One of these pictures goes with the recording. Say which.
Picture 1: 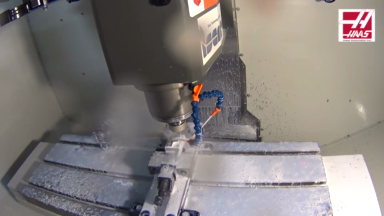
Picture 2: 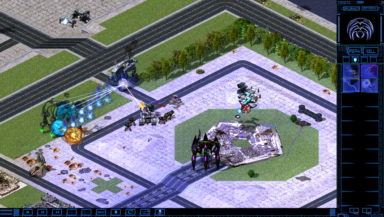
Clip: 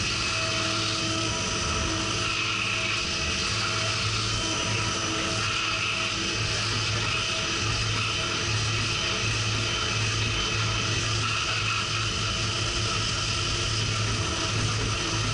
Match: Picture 1